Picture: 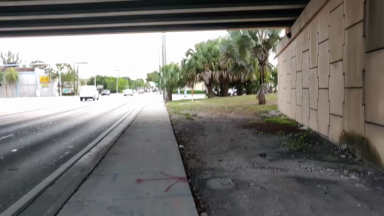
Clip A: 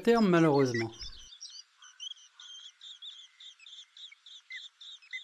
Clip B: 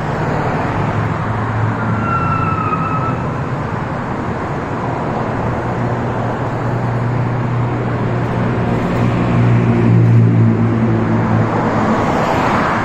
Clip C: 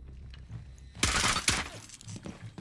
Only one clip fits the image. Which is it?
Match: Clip B